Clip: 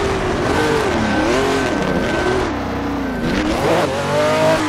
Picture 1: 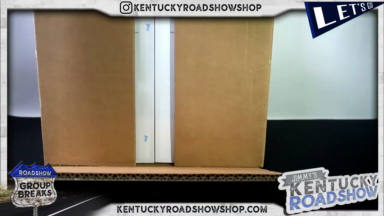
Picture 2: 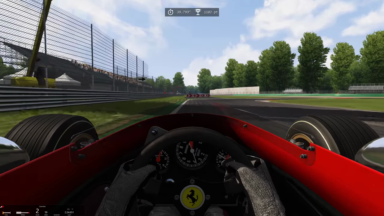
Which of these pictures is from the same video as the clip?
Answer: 2